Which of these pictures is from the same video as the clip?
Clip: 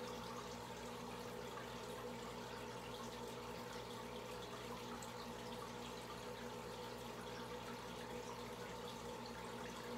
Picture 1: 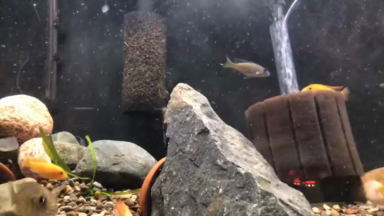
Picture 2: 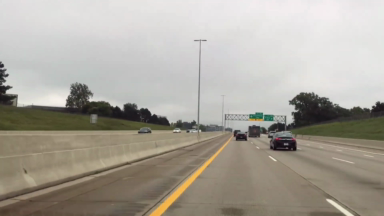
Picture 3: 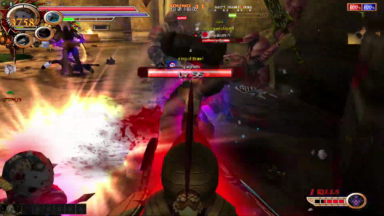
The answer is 1